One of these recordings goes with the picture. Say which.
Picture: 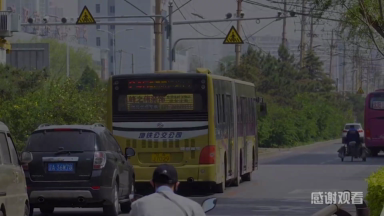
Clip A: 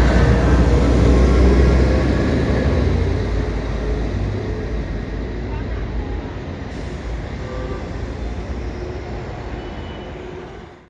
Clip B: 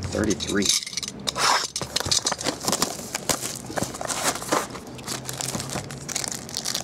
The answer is A